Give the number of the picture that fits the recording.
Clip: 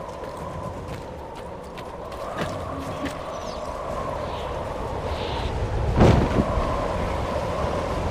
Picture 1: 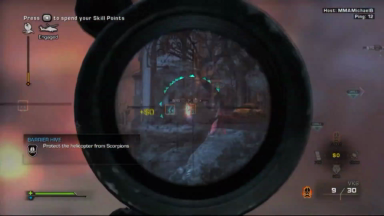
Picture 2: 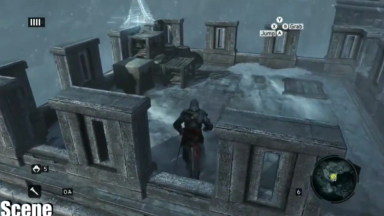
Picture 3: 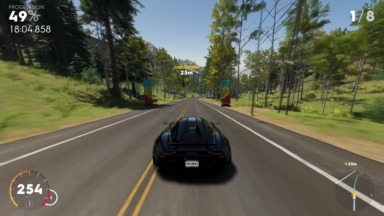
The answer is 2